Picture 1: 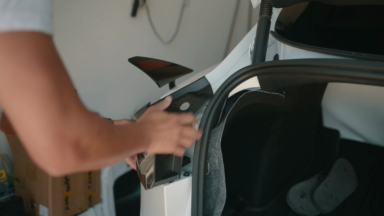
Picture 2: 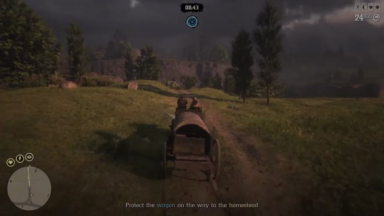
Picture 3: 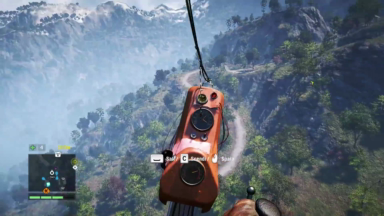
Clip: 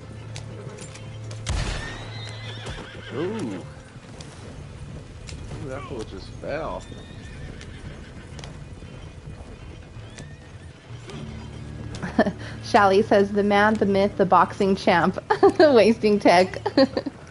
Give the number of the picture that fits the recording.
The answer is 2